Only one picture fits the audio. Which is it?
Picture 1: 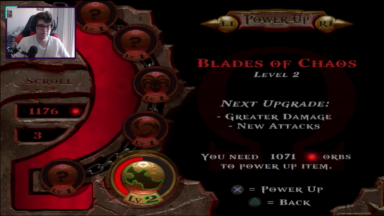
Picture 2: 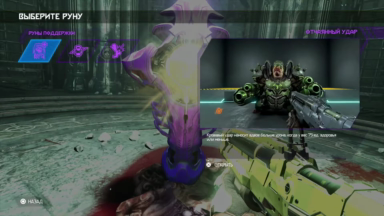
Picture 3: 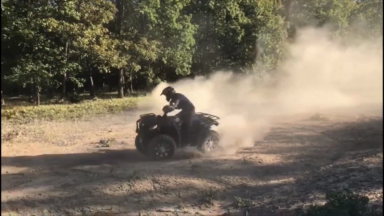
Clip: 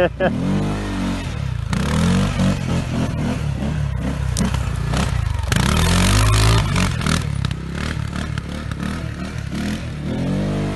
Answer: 3